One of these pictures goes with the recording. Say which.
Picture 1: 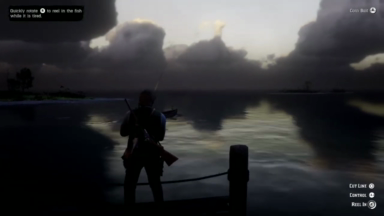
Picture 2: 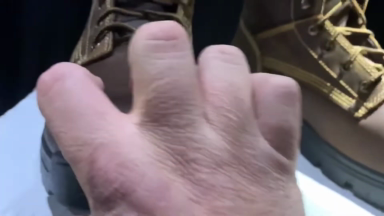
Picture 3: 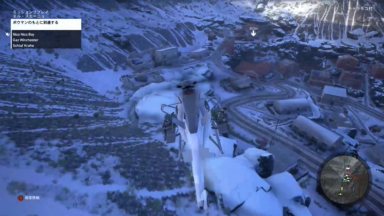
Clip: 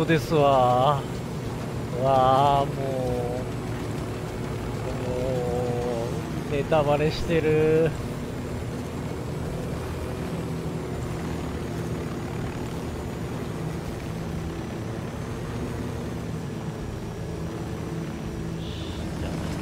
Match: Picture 3